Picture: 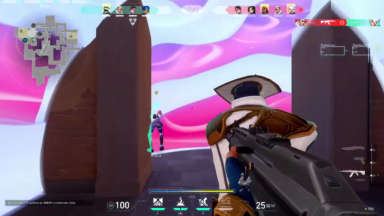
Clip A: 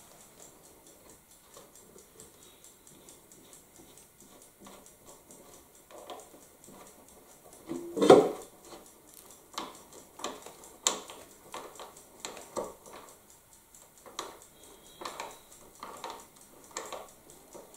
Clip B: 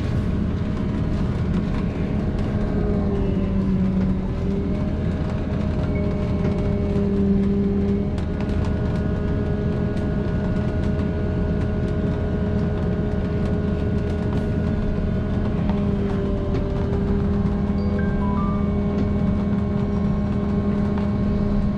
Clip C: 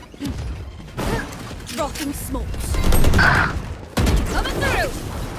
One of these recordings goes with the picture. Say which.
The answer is C